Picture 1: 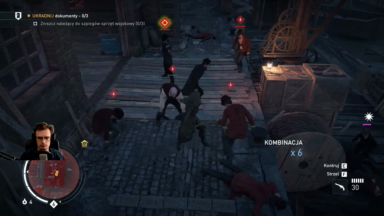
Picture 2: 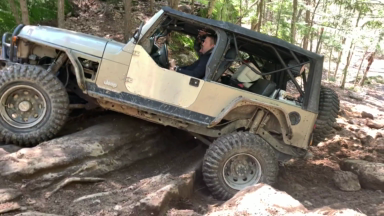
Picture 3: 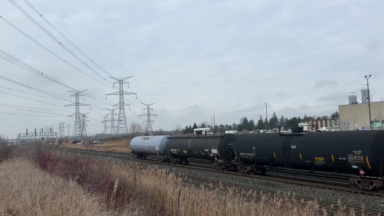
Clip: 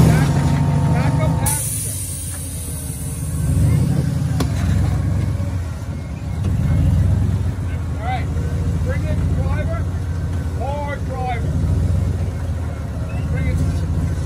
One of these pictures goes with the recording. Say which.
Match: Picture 2